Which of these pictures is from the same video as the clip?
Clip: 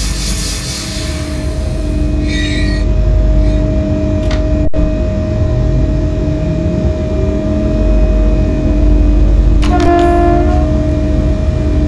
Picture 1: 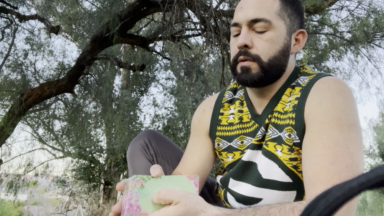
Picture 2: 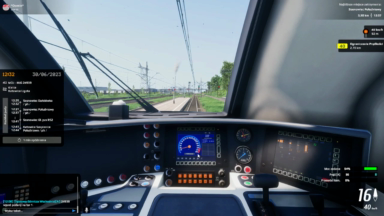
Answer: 2